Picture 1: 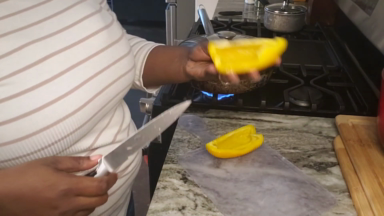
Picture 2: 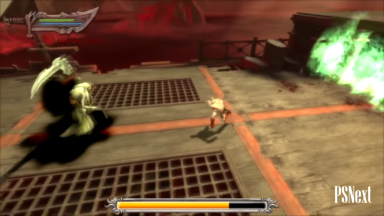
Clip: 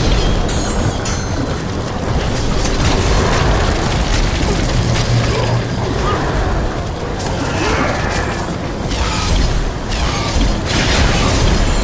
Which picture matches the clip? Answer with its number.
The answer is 2